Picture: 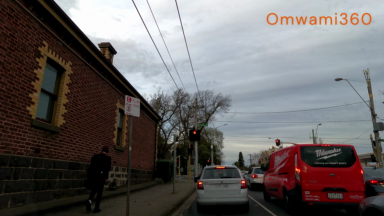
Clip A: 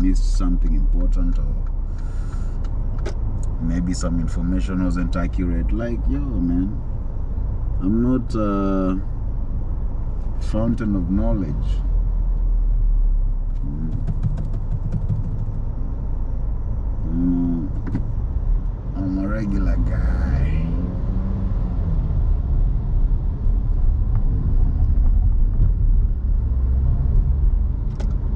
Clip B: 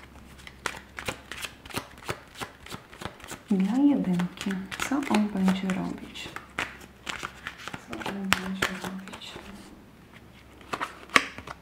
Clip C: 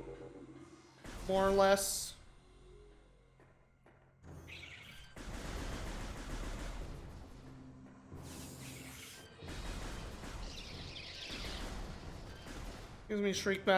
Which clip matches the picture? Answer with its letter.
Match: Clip A